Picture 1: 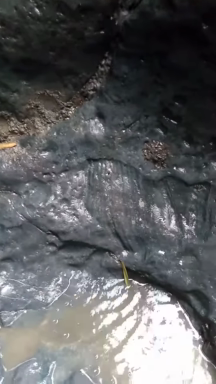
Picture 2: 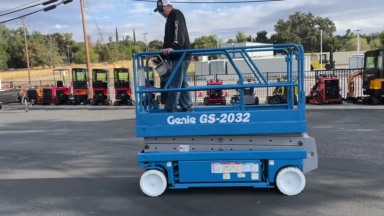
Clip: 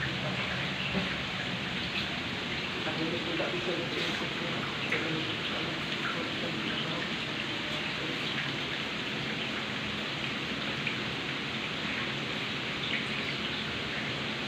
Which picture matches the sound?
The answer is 1